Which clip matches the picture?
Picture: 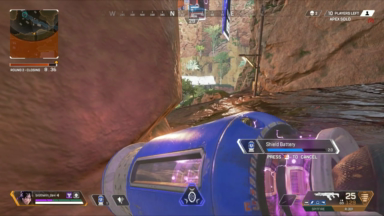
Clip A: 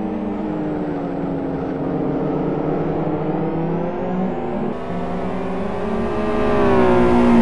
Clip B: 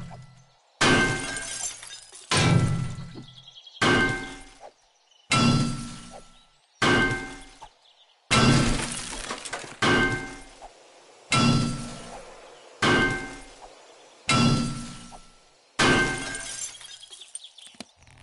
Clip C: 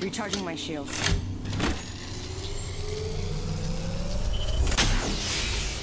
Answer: C